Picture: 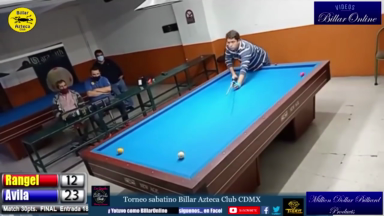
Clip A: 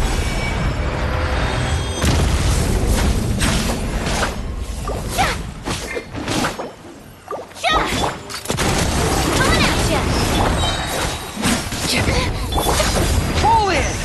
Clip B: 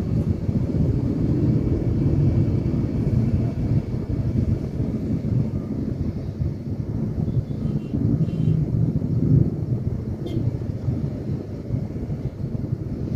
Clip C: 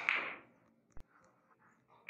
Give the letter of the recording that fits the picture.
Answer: C